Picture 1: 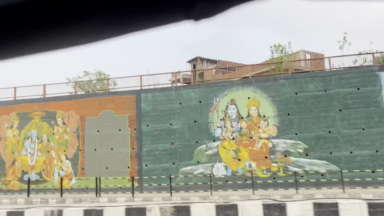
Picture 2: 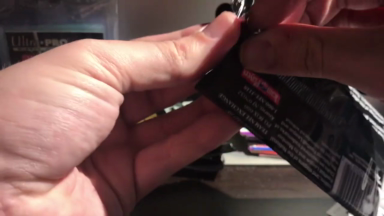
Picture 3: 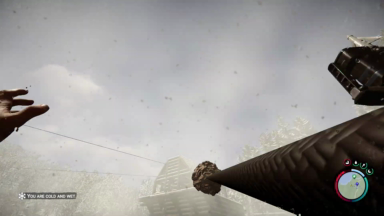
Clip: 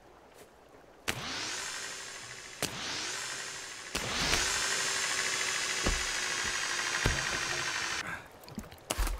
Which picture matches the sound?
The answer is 3